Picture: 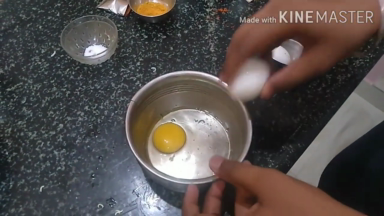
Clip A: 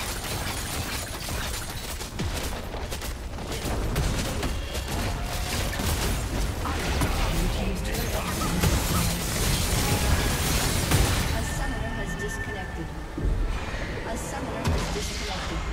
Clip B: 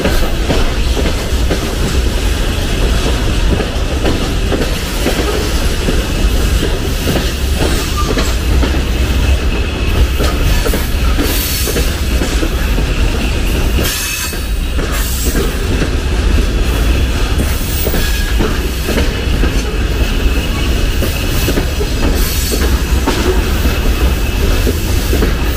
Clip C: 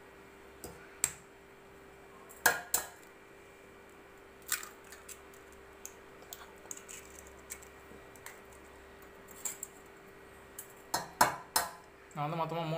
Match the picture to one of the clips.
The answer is C